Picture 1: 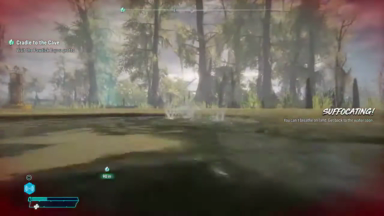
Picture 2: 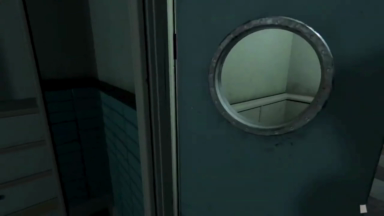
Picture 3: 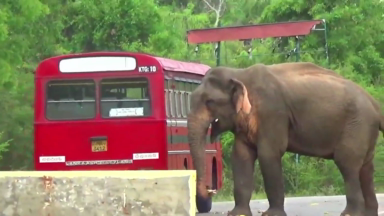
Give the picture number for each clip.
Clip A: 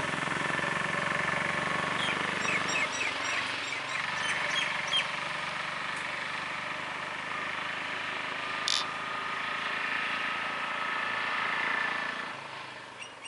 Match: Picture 3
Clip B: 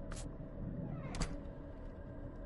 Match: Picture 2